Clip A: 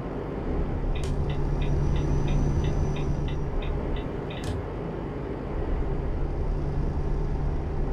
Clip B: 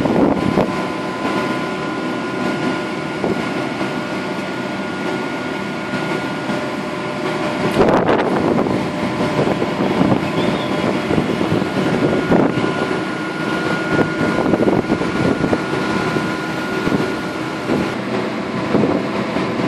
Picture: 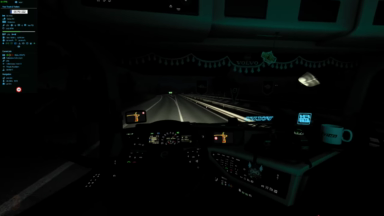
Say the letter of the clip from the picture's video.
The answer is A